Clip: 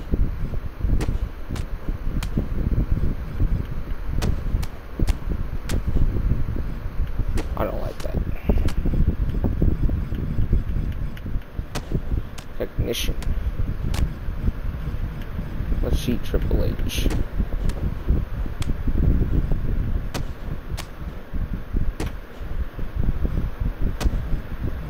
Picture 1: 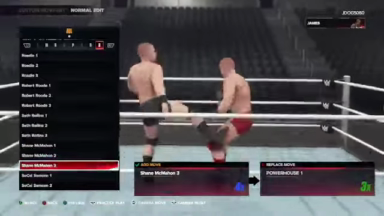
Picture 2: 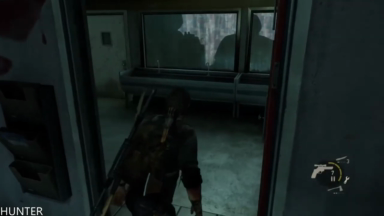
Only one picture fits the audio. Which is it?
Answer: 1